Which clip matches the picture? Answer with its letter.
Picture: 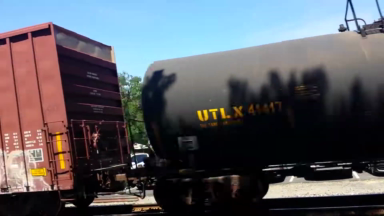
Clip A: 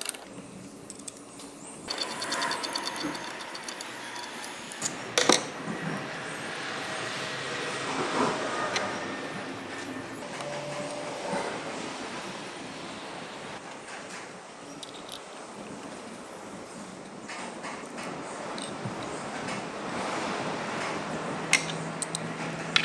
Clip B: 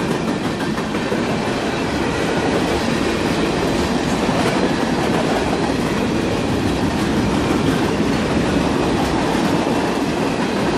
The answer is B